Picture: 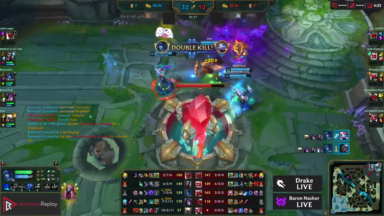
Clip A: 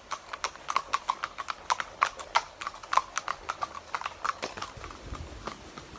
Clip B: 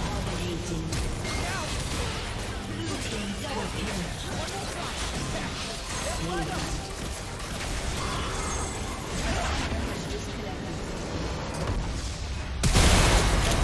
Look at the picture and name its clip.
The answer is B